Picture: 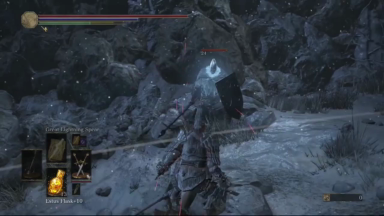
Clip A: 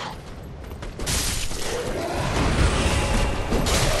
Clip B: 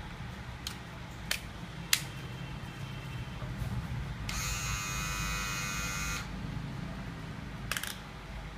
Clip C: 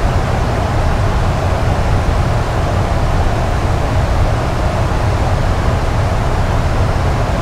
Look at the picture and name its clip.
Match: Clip A